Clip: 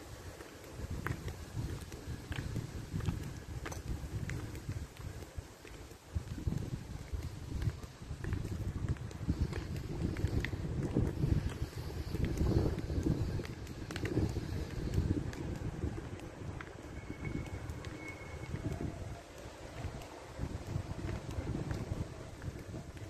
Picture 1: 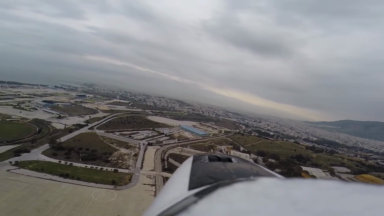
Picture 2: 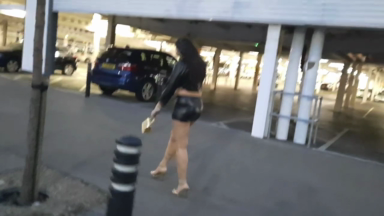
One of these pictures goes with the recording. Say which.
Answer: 2